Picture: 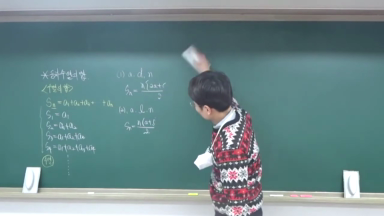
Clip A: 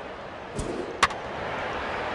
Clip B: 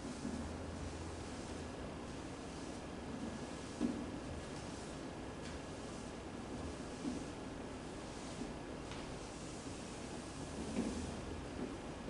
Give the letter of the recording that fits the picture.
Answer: B